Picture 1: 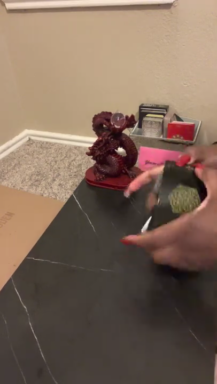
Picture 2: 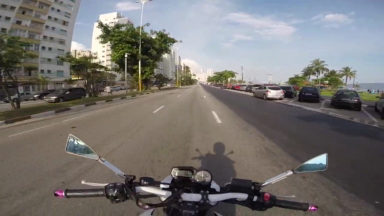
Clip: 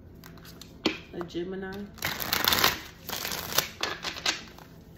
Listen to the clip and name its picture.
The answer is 1